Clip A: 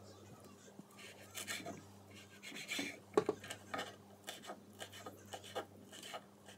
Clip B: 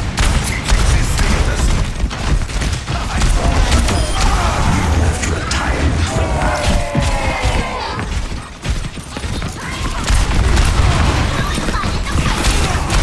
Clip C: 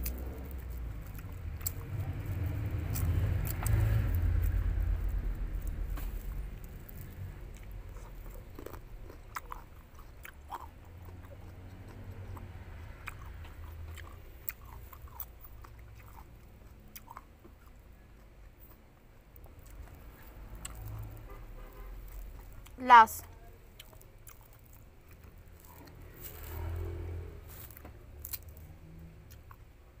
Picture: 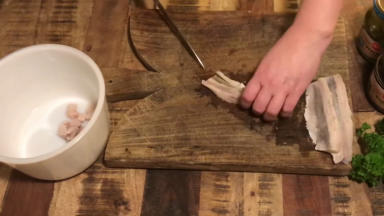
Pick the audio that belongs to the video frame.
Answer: A